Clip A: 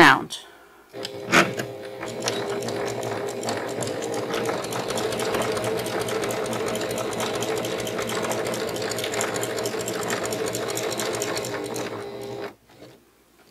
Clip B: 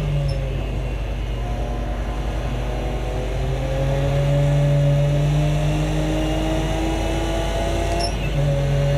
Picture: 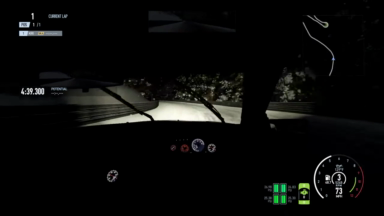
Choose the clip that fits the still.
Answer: B